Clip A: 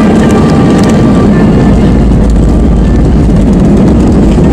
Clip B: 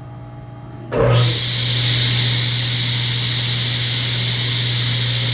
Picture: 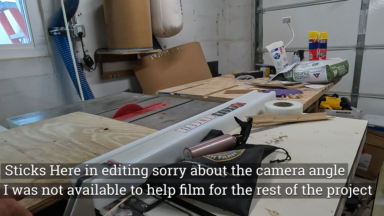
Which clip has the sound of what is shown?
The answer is B